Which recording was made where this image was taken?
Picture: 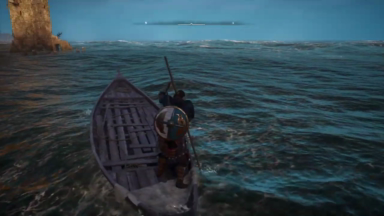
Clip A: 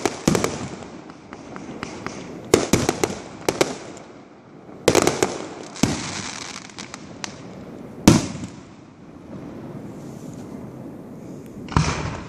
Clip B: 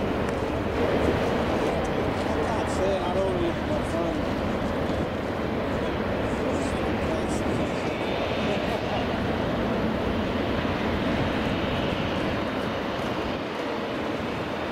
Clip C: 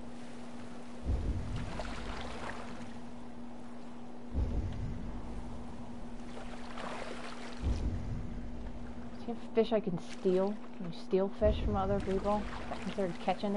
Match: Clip C